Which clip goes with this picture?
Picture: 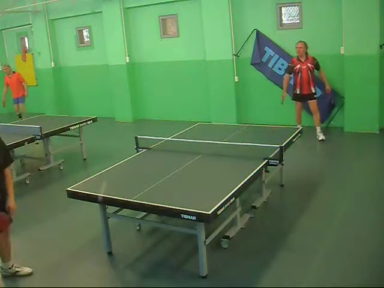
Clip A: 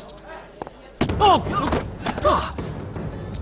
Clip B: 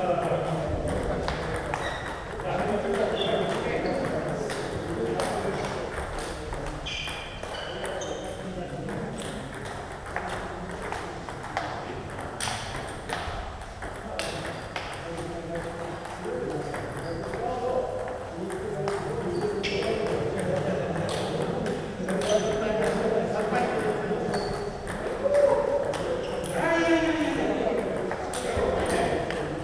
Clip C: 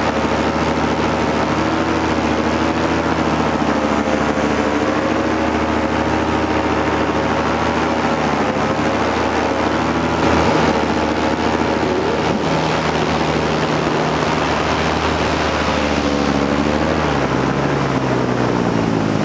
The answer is B